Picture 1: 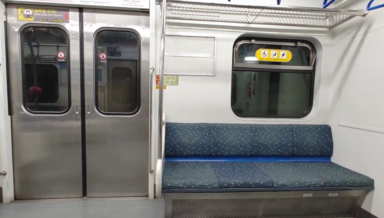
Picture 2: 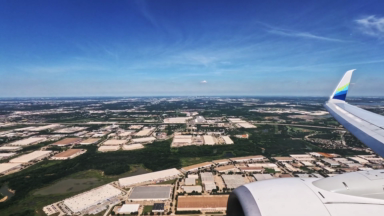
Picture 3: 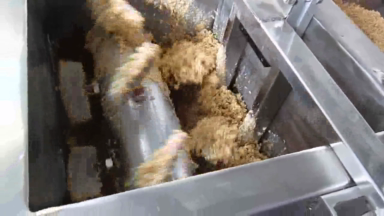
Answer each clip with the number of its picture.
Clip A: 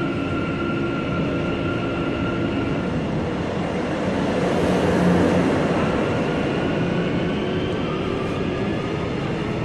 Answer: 1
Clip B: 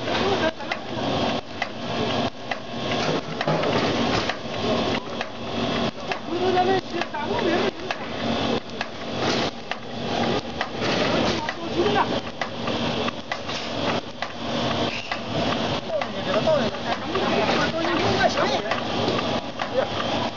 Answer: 3